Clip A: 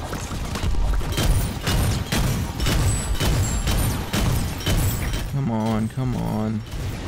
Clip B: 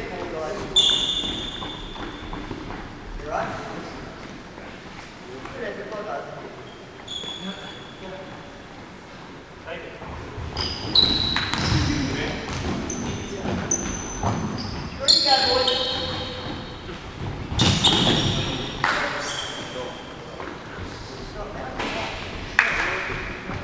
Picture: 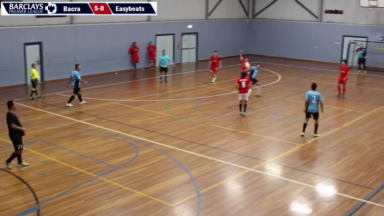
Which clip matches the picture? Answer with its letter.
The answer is B